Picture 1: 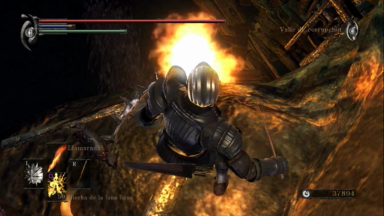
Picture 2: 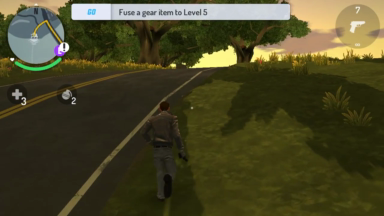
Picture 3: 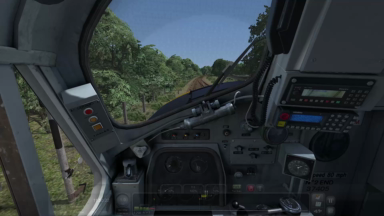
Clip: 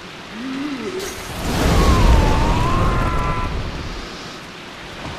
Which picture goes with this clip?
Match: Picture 1